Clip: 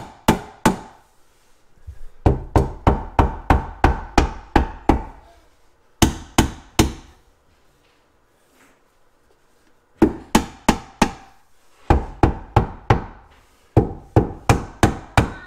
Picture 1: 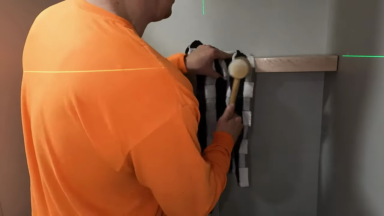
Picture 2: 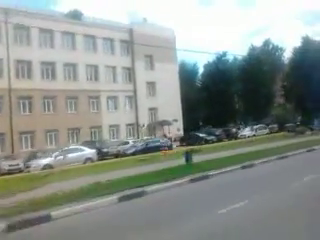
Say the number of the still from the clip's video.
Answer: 1